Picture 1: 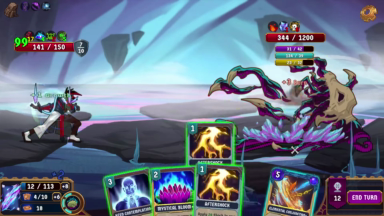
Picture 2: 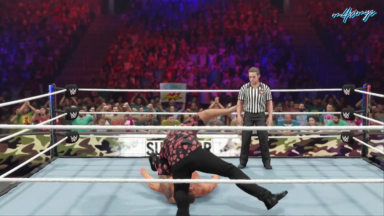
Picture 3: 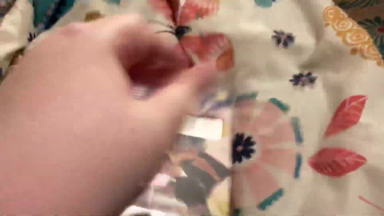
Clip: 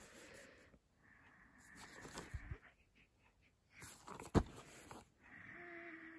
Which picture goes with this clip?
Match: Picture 3